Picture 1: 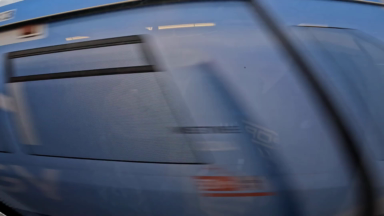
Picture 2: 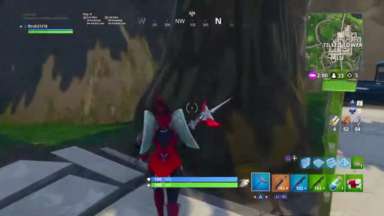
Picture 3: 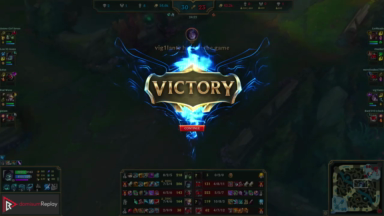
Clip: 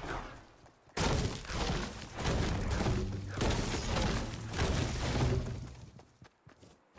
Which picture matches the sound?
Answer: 2